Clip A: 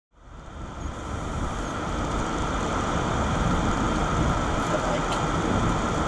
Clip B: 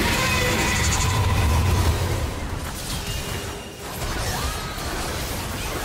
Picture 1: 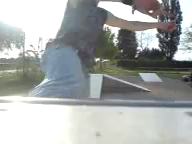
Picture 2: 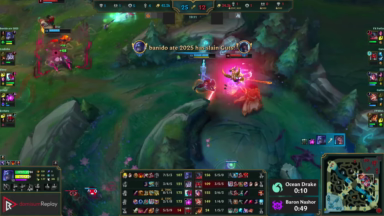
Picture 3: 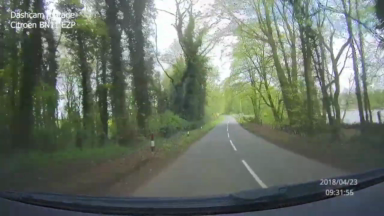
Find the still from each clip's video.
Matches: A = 3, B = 2